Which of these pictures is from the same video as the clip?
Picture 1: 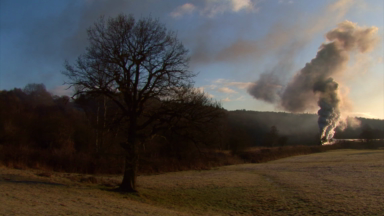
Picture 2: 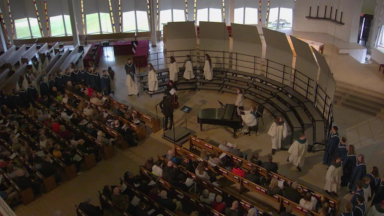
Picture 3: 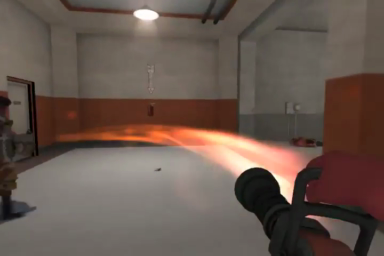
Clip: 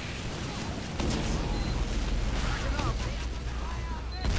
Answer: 3